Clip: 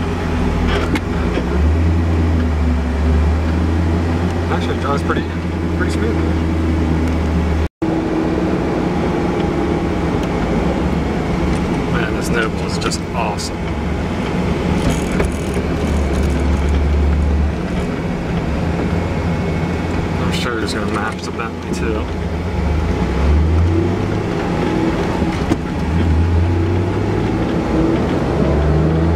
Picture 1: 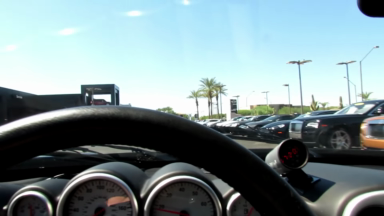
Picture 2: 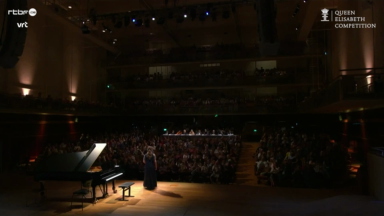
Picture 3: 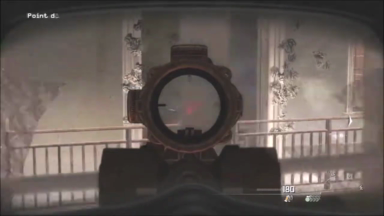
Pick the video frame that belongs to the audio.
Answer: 1